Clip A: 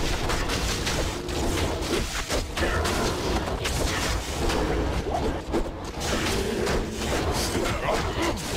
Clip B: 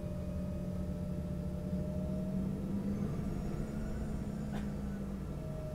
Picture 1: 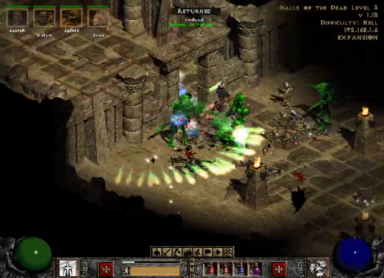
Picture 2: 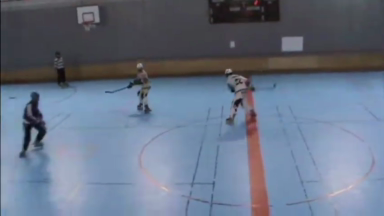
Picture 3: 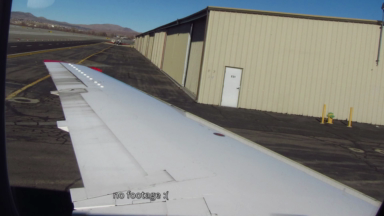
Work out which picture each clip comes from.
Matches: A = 1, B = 3